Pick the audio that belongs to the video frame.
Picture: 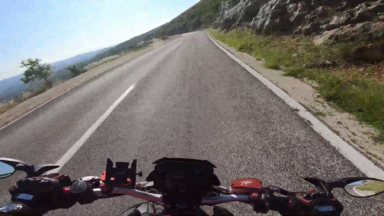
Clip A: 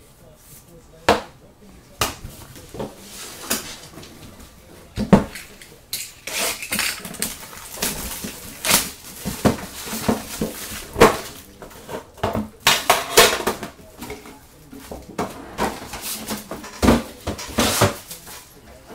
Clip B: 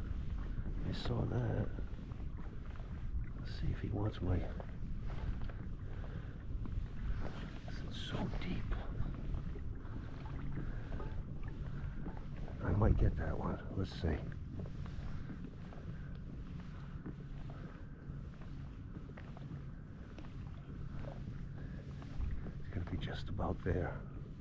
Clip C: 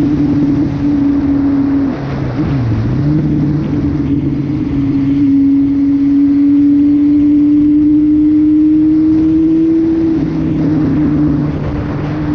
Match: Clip C